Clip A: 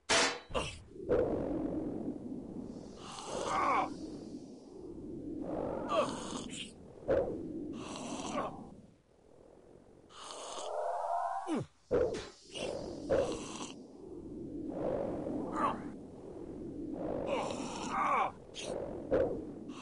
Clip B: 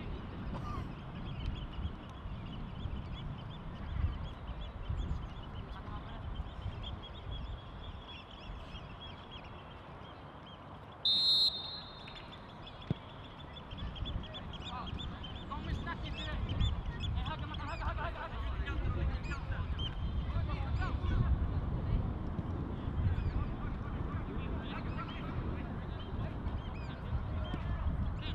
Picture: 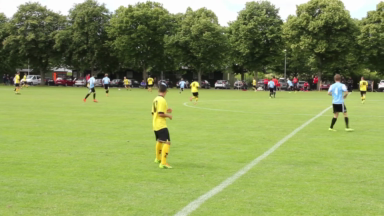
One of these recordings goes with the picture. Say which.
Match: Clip B